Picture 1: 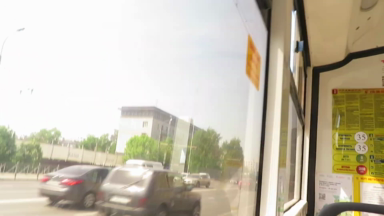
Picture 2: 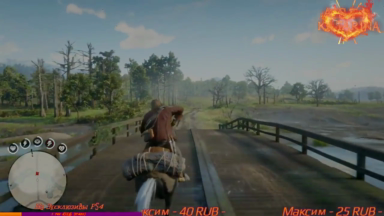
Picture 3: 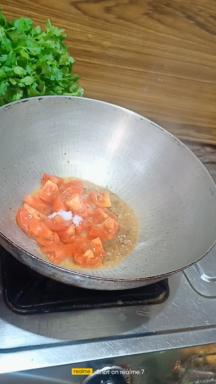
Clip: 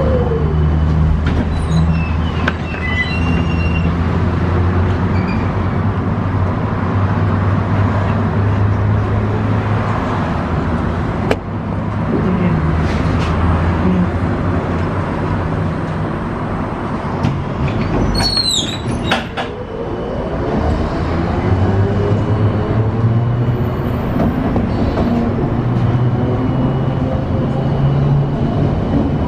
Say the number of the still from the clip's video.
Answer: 1